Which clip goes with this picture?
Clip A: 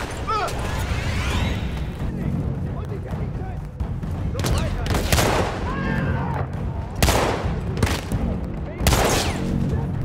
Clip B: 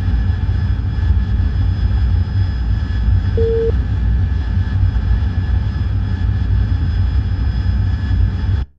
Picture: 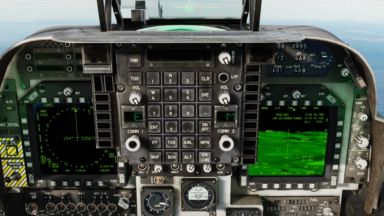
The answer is B